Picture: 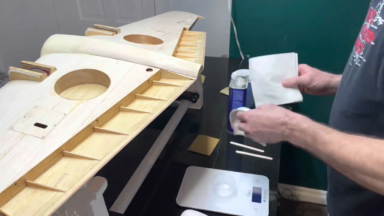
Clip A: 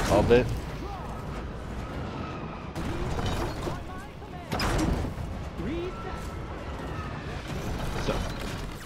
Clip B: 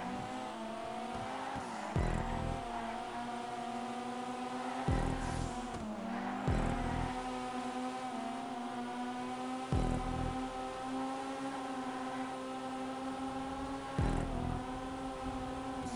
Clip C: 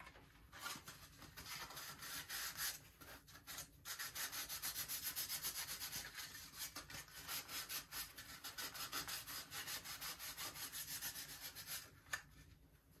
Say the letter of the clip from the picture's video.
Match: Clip C